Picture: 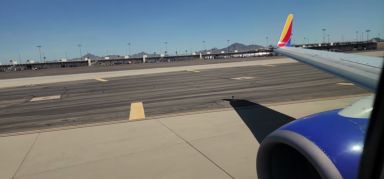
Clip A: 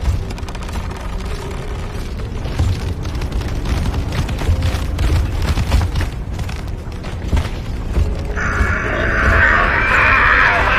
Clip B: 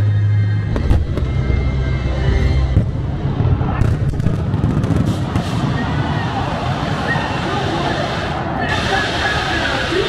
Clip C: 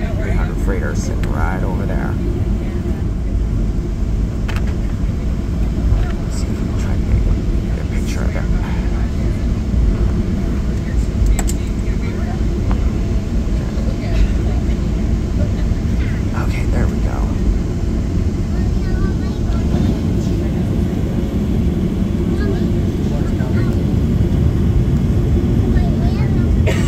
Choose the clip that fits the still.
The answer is C